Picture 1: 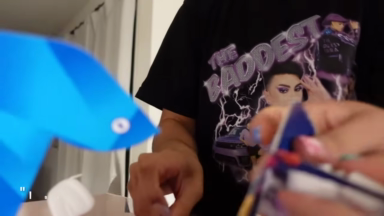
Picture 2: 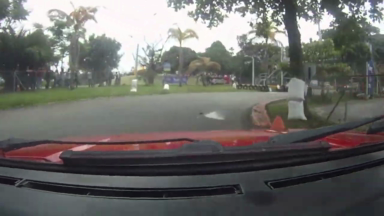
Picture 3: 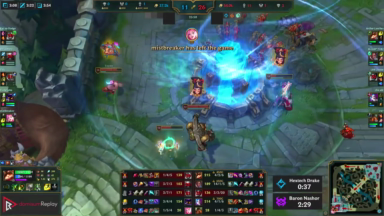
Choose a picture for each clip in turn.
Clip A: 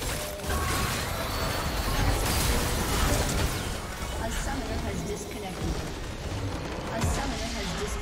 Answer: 3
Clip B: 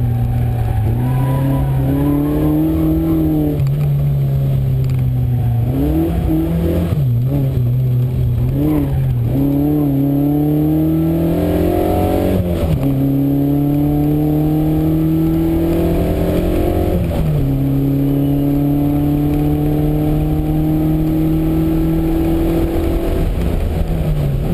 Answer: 2